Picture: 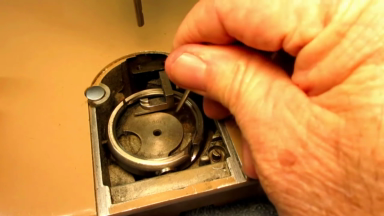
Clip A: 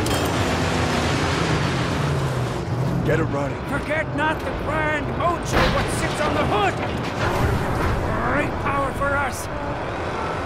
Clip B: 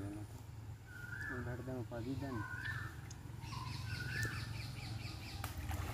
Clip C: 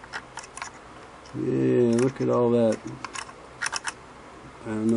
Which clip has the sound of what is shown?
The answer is C